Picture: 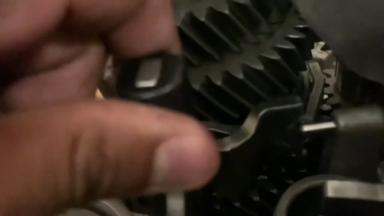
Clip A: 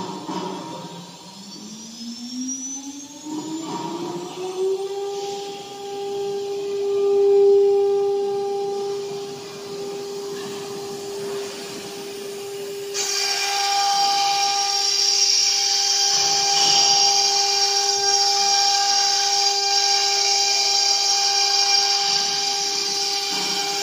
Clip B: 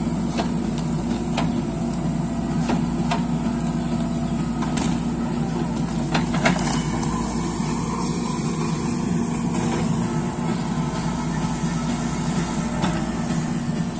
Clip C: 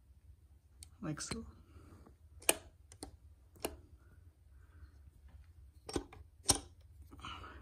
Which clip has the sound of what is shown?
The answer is C